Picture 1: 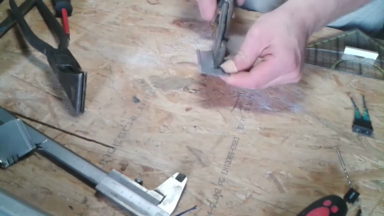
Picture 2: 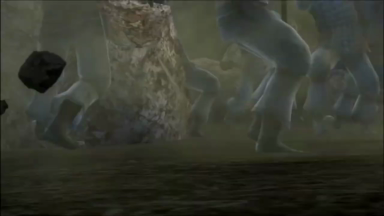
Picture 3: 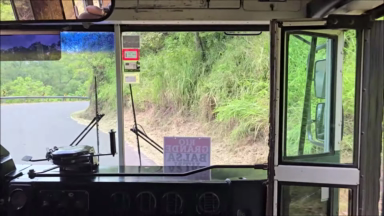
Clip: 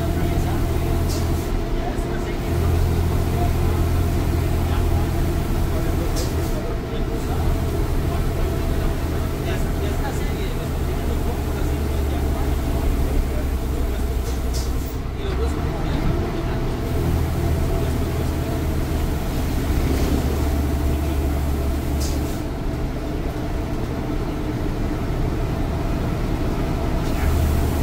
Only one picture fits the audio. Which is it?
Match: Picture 3